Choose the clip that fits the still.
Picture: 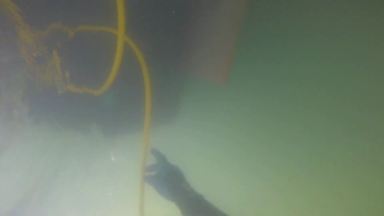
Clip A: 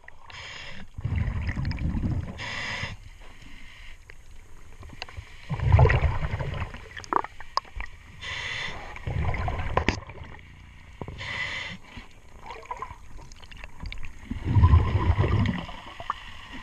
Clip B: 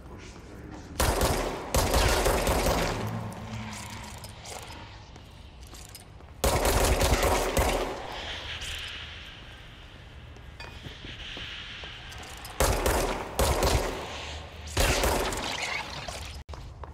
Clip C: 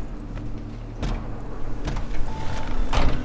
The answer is A